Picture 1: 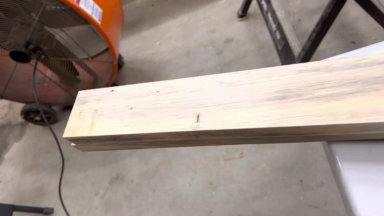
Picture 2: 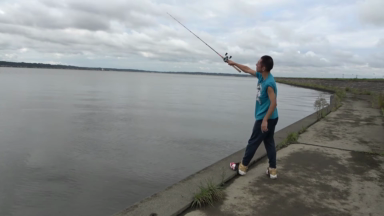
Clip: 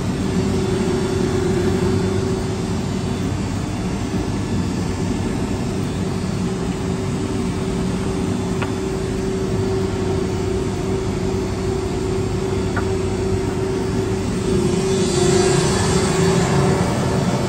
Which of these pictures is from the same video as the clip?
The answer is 1